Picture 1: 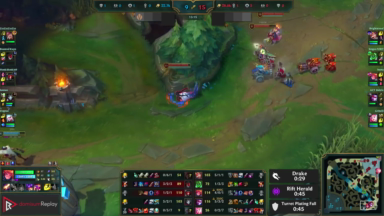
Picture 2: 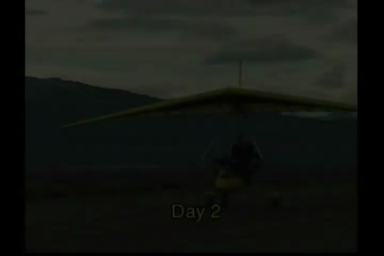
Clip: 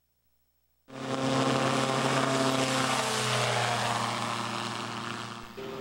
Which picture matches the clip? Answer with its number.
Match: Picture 2